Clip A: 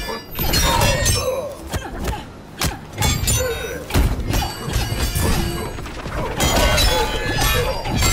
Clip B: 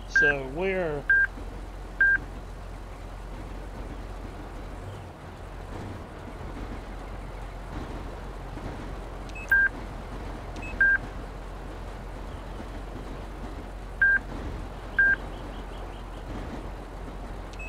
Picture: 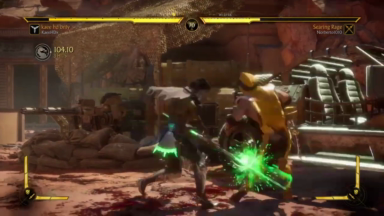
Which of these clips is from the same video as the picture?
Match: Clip A